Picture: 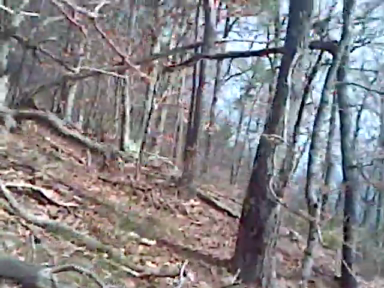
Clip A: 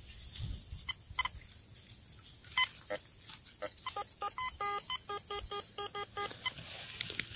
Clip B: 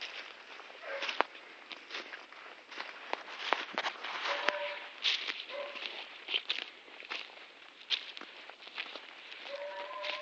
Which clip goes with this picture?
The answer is B